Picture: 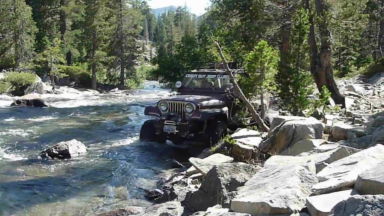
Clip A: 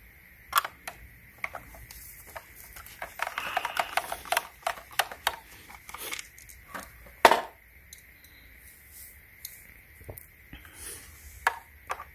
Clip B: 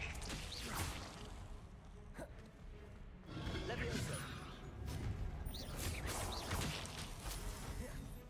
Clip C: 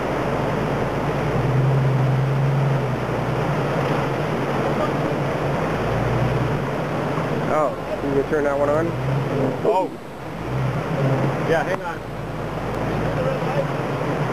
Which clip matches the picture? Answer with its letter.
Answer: C